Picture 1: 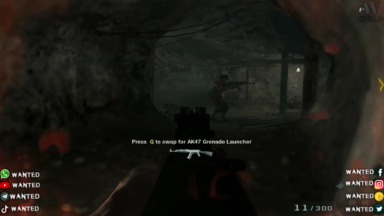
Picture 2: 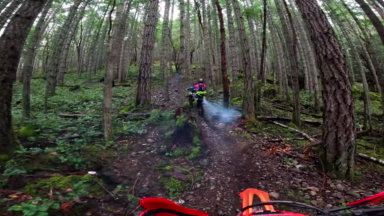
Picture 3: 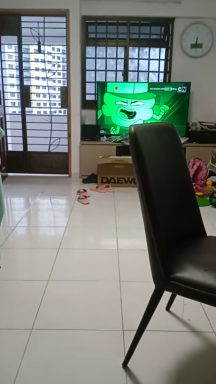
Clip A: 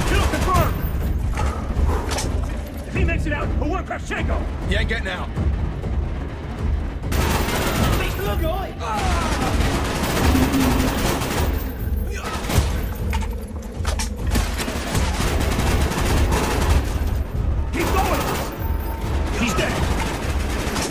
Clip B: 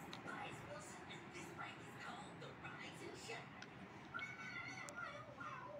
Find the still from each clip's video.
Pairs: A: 1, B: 3